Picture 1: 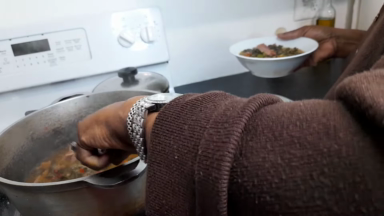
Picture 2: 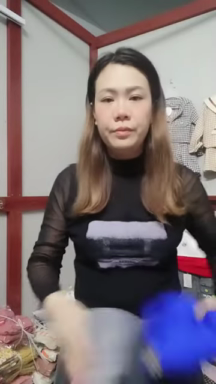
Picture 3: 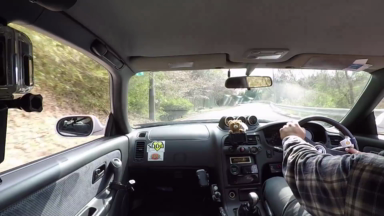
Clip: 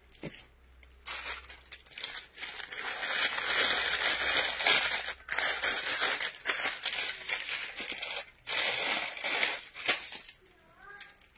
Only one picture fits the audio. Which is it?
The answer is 2